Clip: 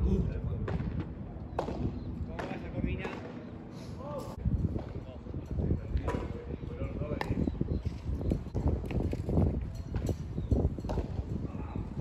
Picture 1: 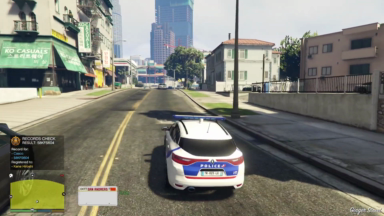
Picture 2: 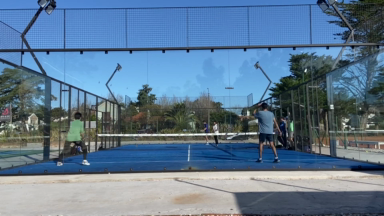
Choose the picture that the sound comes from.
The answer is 2